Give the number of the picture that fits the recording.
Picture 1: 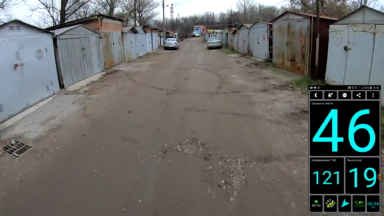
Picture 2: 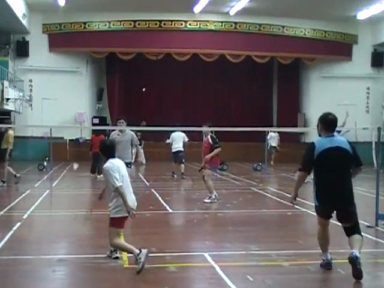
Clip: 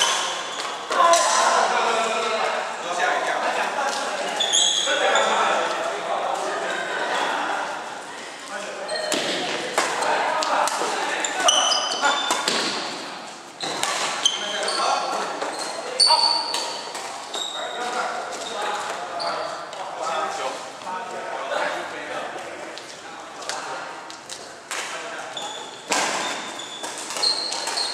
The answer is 2